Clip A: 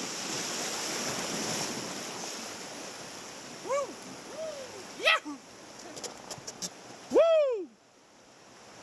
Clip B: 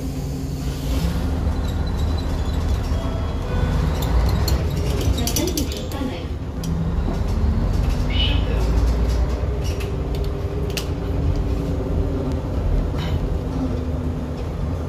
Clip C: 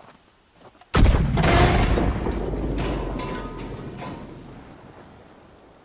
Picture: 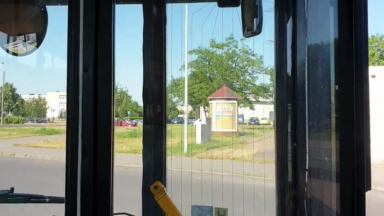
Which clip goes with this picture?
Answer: B